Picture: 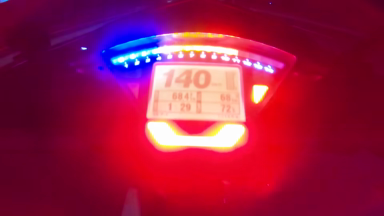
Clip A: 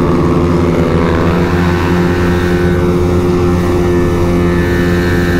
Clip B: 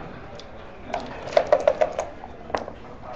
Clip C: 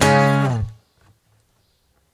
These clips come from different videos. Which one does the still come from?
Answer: A